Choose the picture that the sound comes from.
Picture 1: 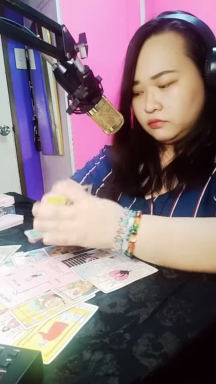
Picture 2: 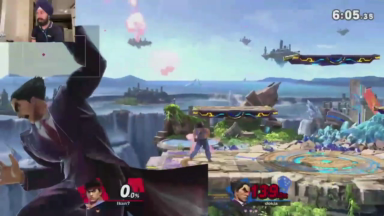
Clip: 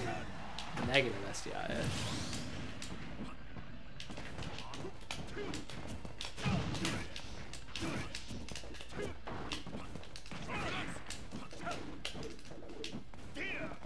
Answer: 2